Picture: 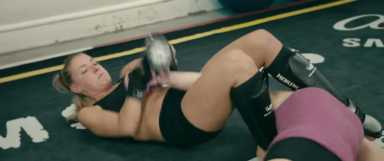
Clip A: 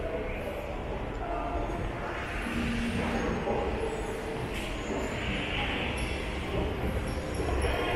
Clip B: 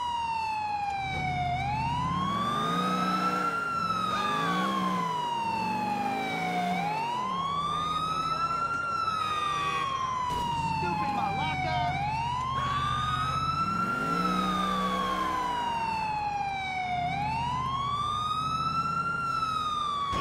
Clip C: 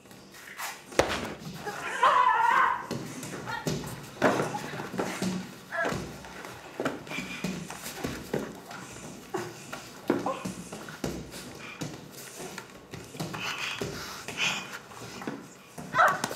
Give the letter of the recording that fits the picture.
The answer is C